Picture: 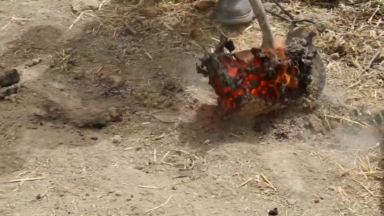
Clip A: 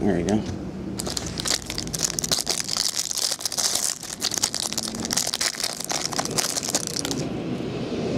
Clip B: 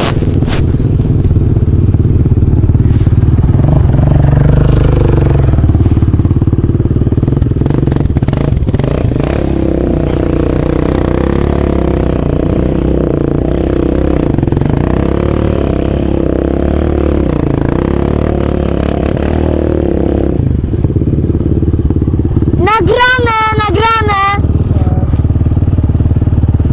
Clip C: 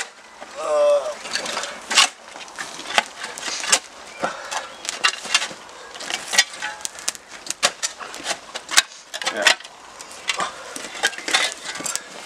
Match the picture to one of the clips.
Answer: C